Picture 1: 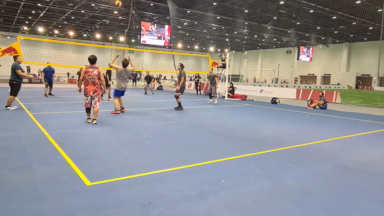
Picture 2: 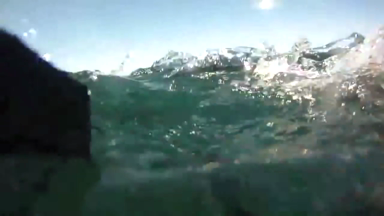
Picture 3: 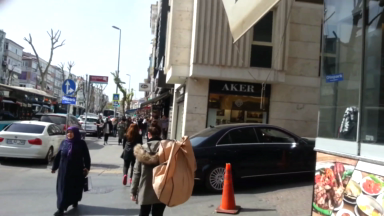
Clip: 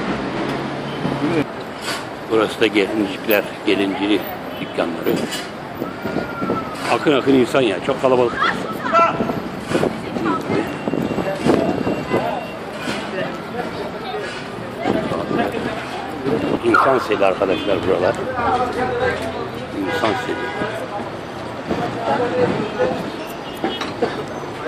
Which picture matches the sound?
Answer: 3